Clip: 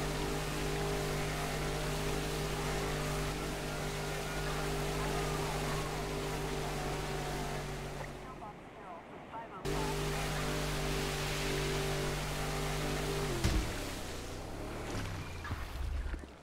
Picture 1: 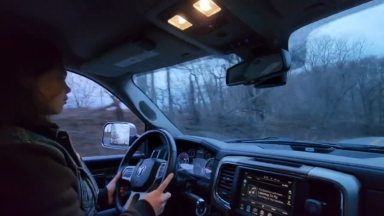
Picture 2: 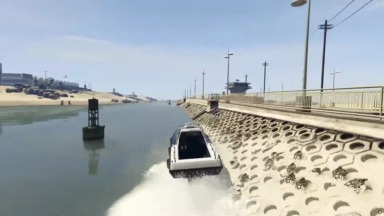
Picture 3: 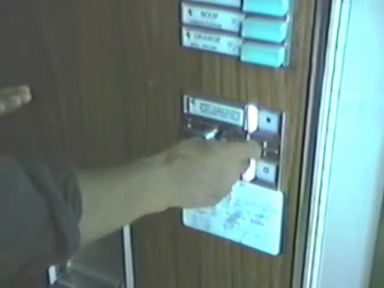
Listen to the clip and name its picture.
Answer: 2